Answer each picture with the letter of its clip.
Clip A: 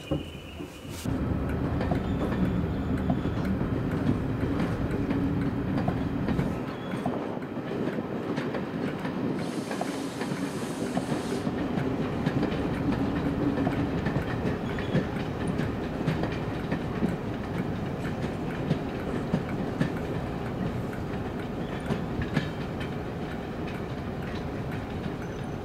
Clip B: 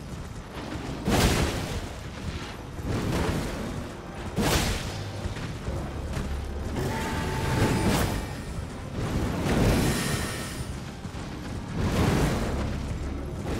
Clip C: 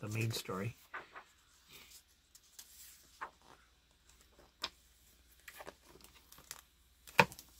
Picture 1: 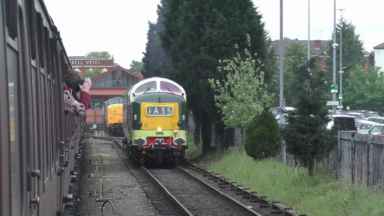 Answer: A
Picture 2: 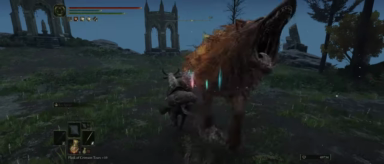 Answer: B